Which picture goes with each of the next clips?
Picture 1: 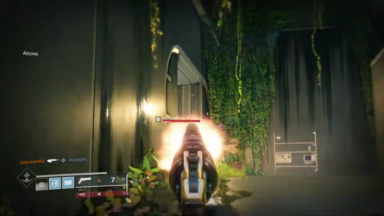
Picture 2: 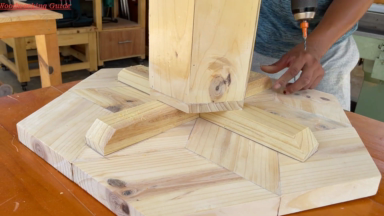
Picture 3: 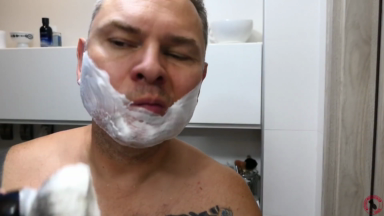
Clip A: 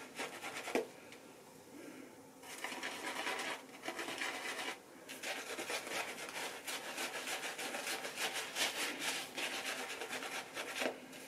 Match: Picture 3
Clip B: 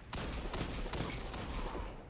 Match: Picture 1